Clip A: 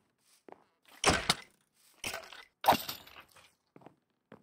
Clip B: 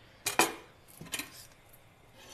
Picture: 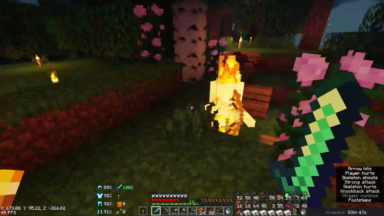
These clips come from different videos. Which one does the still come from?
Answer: A